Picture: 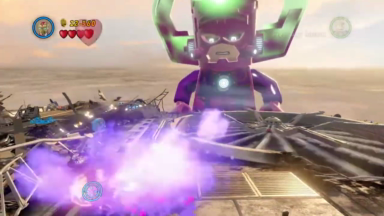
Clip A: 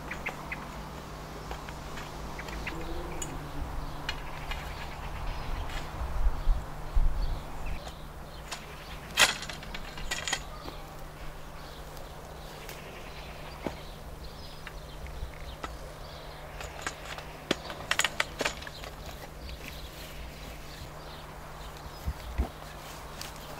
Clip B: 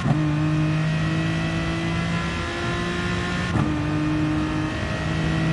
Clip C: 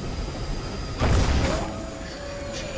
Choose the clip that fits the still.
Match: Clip C